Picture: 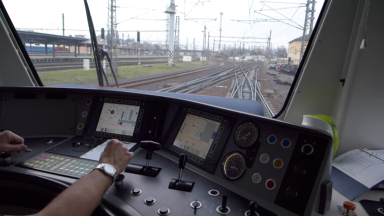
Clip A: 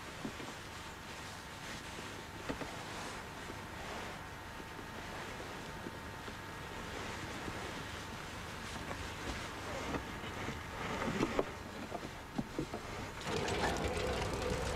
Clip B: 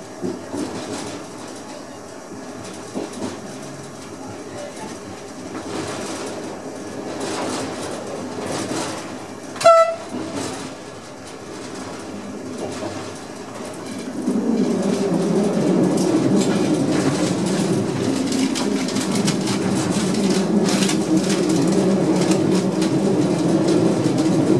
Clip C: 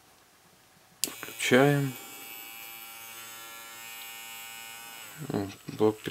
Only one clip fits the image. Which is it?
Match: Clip B